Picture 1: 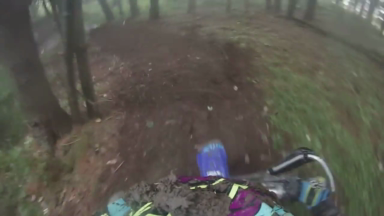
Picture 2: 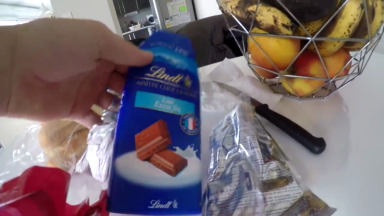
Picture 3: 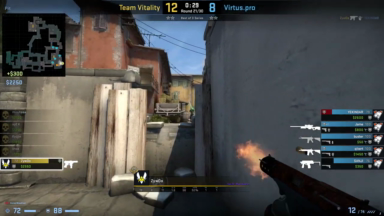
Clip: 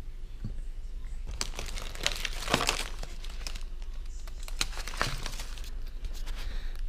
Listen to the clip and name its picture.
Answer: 2